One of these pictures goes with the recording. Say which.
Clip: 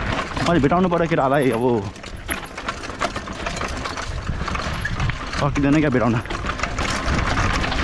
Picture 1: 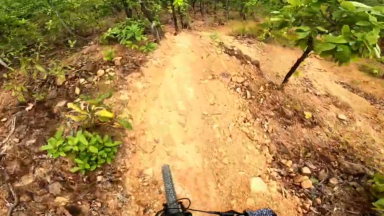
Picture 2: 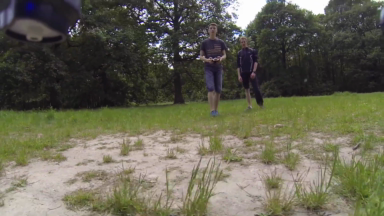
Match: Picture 1